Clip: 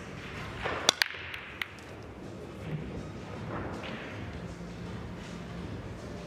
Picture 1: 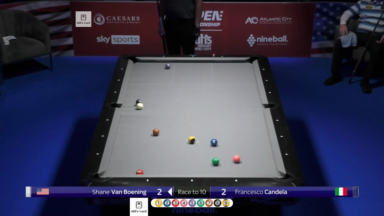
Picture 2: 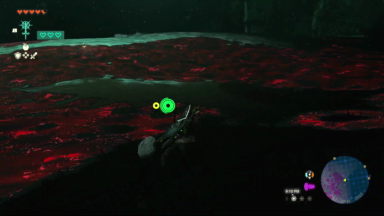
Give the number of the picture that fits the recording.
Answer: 1